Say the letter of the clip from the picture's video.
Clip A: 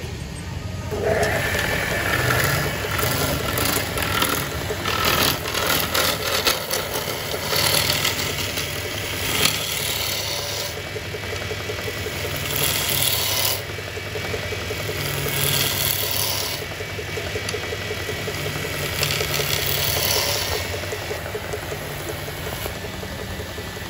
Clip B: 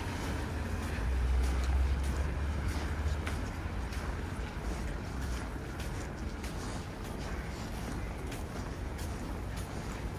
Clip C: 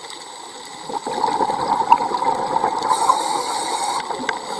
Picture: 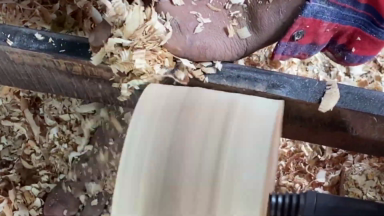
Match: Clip A